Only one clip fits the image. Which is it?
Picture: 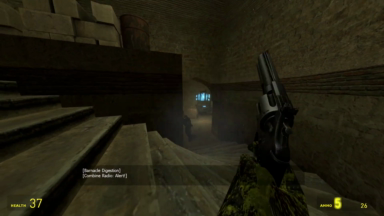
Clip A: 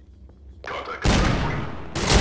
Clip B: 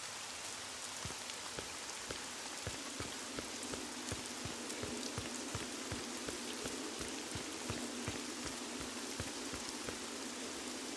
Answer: A